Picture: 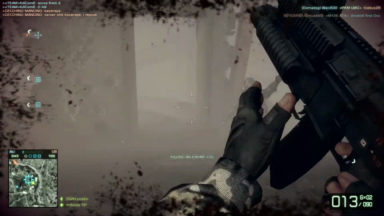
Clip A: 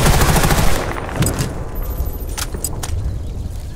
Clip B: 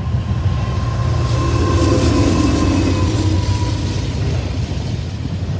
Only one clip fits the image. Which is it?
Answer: A